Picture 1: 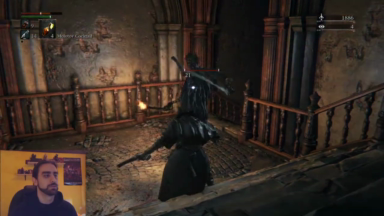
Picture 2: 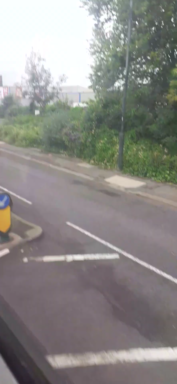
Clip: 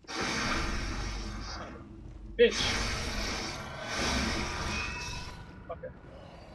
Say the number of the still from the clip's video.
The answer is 1